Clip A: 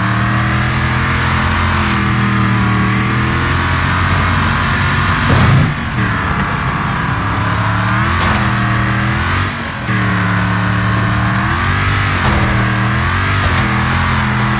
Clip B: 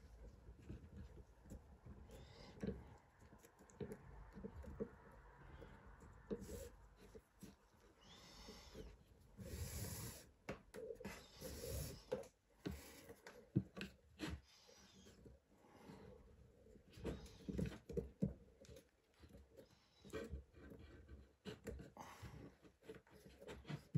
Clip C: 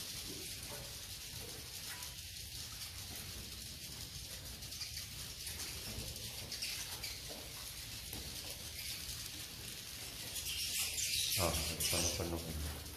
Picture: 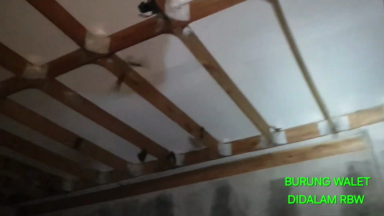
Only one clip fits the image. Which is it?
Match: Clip C